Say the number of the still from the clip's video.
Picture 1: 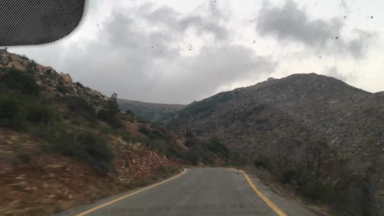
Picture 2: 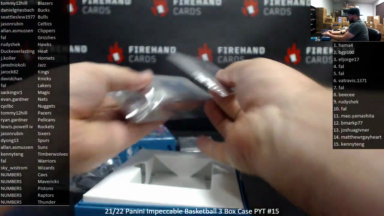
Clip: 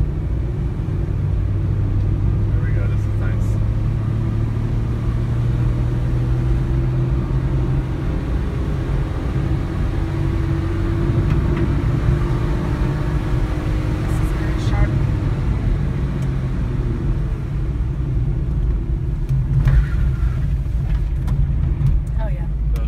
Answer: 1